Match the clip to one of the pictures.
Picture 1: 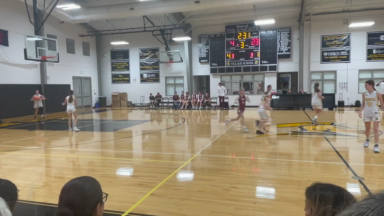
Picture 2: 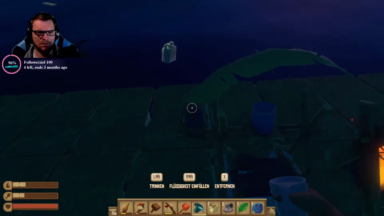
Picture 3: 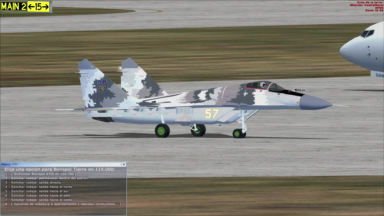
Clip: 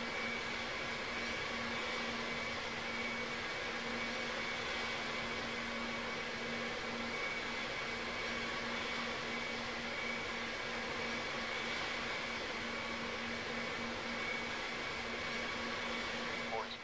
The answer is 3